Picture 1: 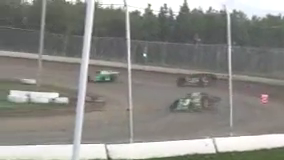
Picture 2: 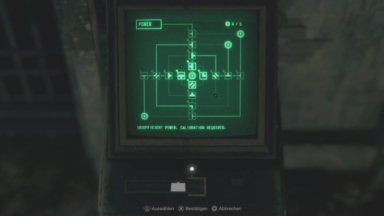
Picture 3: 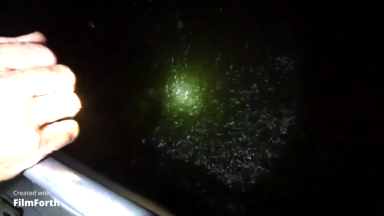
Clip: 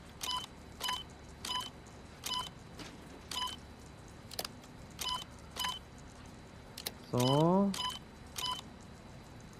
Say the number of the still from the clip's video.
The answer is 2